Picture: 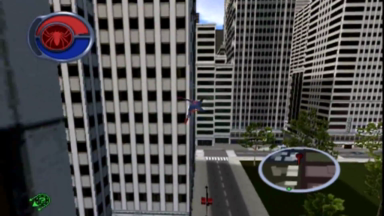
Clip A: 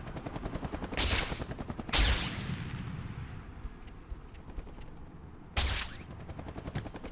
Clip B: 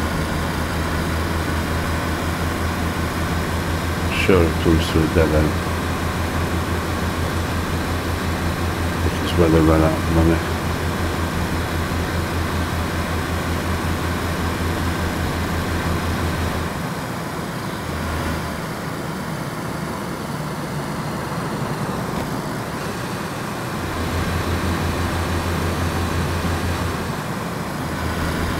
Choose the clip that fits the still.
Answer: A